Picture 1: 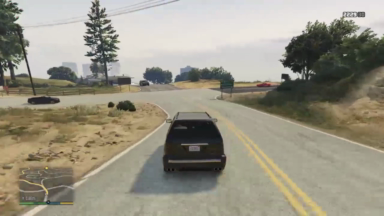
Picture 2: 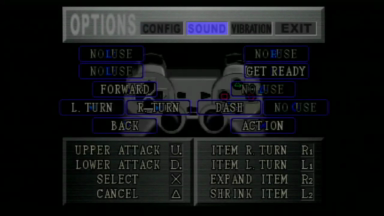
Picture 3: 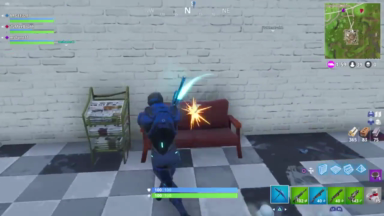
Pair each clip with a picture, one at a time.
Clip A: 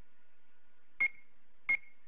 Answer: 2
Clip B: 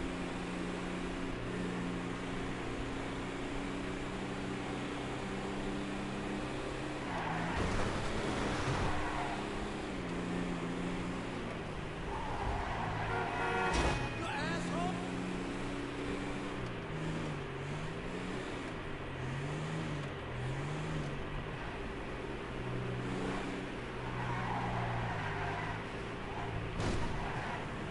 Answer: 1